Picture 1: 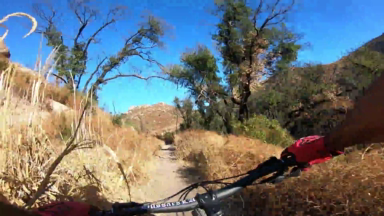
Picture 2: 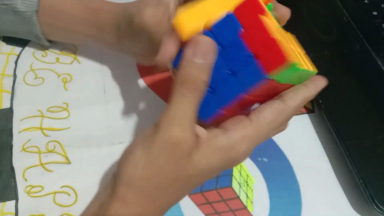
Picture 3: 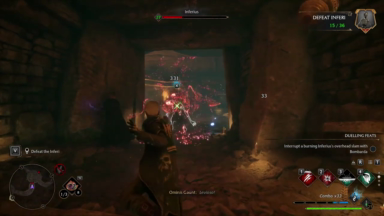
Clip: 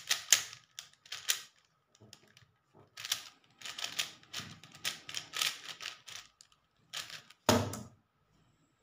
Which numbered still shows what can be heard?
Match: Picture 2